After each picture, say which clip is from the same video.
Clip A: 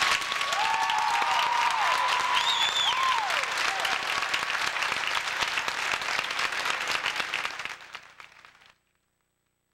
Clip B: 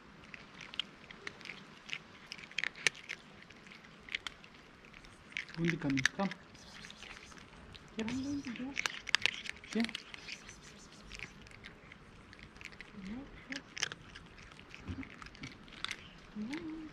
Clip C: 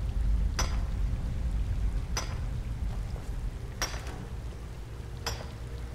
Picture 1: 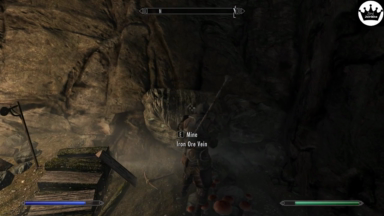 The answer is C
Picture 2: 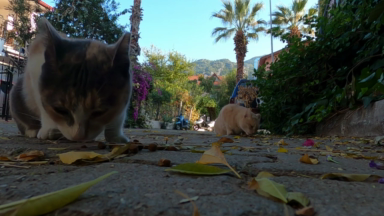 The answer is B